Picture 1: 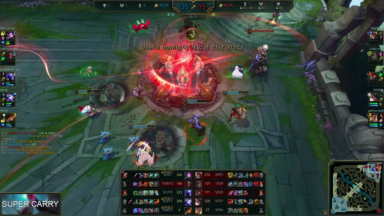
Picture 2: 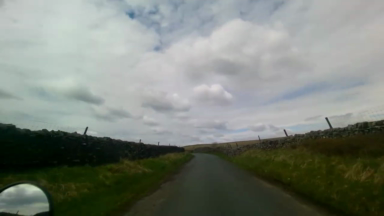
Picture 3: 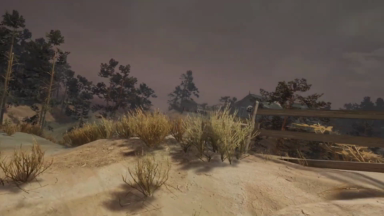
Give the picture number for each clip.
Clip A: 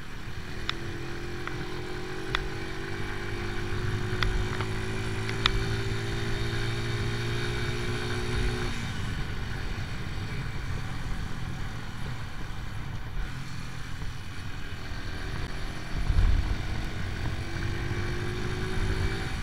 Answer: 2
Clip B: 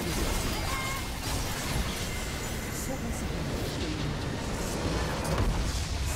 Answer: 1